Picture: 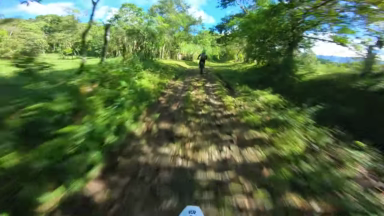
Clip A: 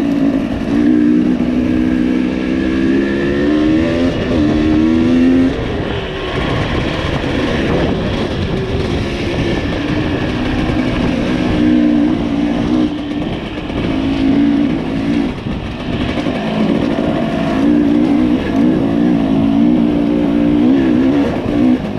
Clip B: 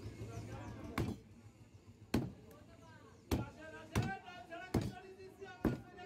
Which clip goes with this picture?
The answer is A